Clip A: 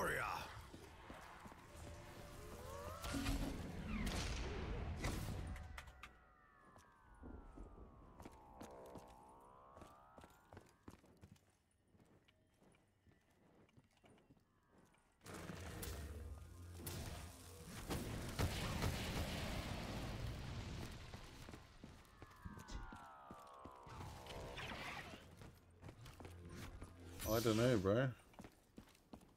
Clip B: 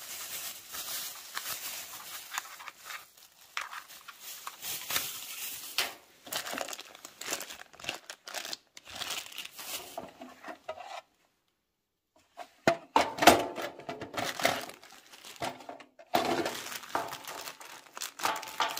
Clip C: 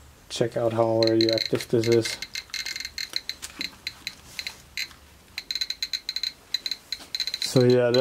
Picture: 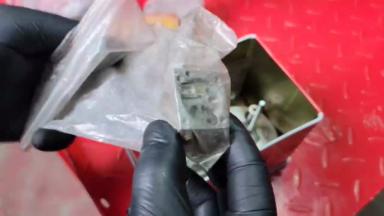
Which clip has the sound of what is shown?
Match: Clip B